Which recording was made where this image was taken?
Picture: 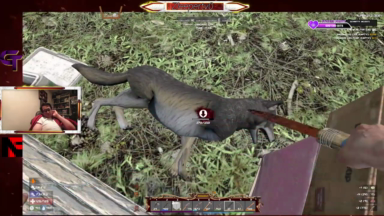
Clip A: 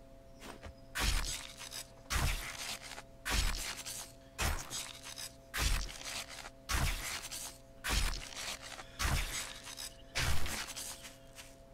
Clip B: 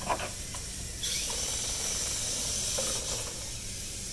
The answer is A